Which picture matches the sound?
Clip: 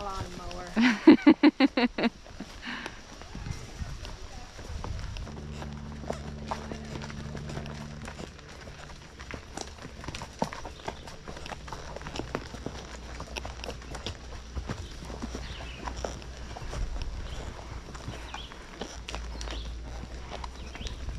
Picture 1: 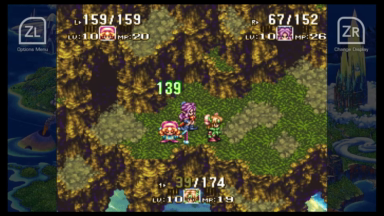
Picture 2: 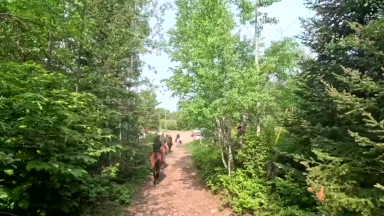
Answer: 2